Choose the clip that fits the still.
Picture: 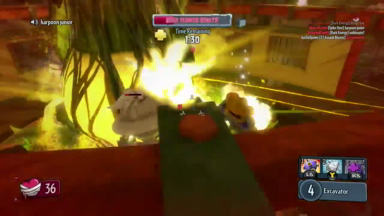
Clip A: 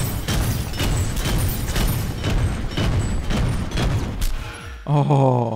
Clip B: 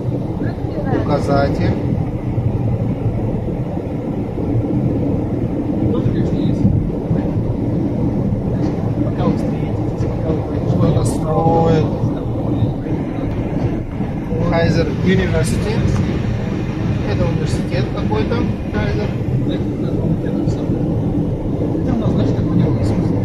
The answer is A